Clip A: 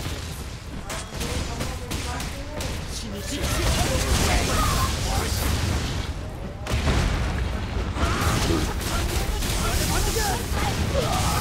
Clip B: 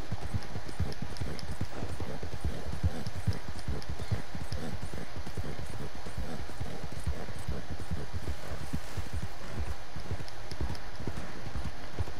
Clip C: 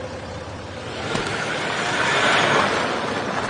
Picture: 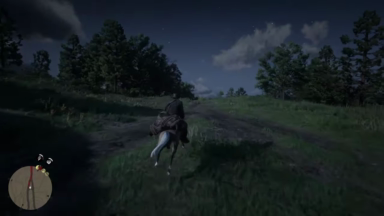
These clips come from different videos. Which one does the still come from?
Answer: B